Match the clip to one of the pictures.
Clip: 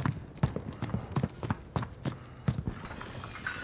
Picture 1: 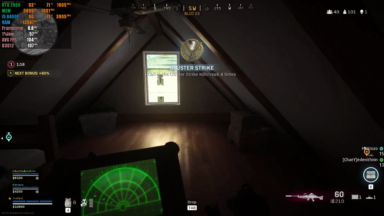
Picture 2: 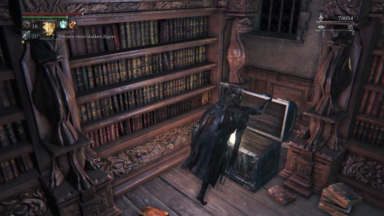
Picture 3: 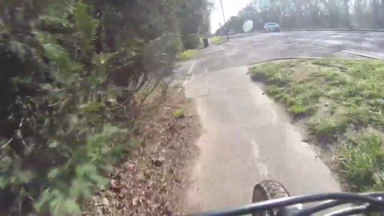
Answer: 1